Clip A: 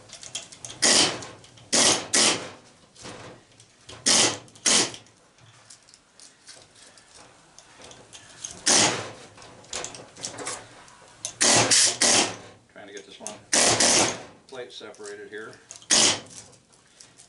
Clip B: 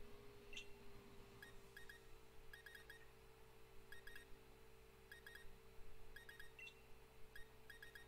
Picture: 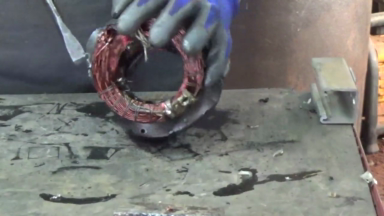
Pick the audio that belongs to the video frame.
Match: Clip A